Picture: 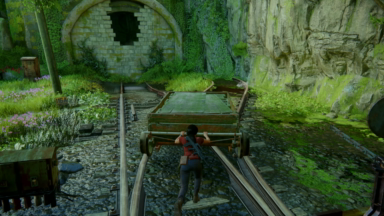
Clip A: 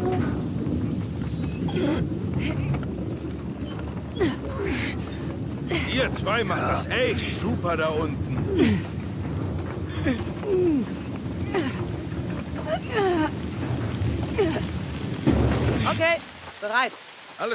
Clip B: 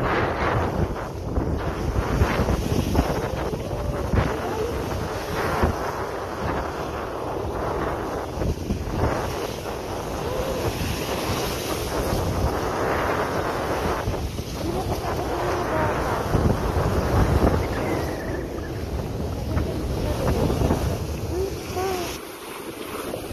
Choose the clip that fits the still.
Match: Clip A